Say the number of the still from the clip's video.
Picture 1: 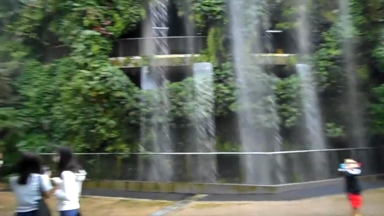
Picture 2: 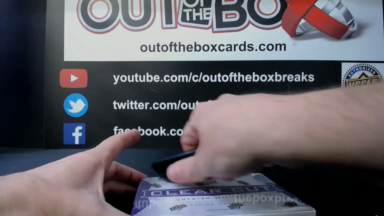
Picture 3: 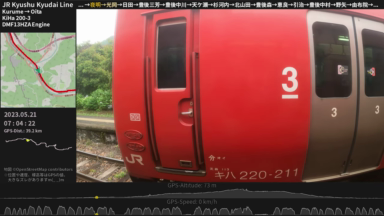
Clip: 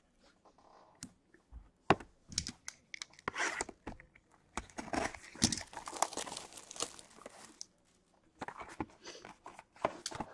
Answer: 2